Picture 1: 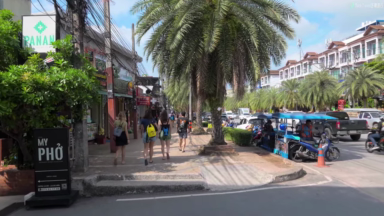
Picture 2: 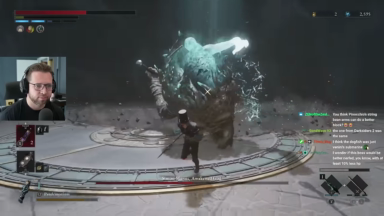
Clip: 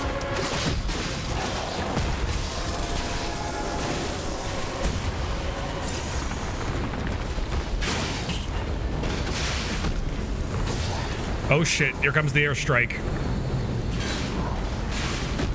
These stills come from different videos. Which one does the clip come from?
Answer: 2